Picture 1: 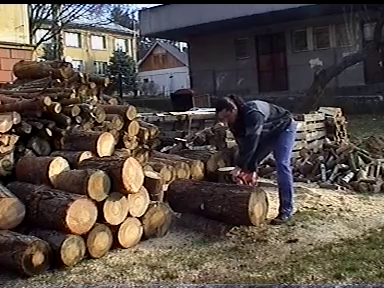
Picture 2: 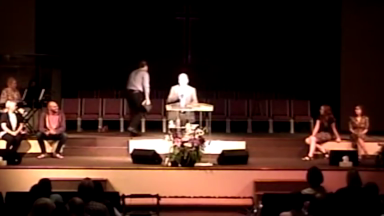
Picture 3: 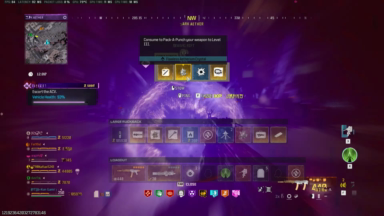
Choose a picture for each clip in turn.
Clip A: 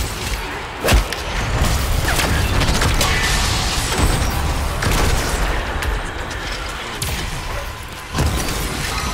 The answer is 3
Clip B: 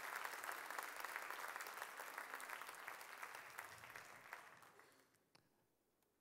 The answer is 2